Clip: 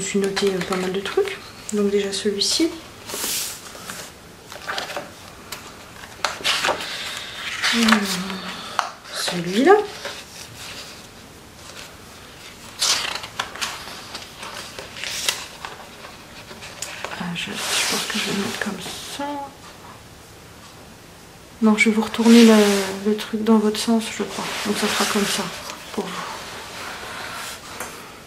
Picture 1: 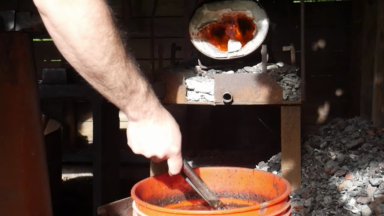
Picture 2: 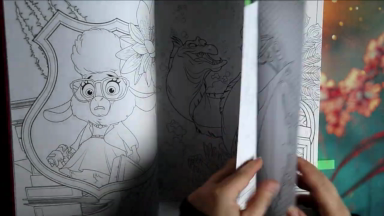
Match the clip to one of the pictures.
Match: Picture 2